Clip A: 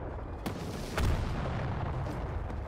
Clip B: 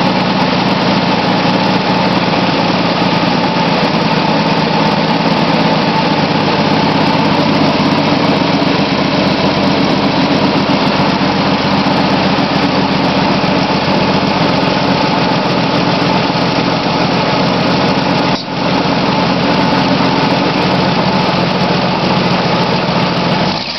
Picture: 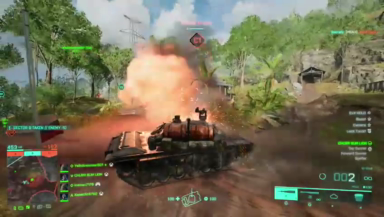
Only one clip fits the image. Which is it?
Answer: A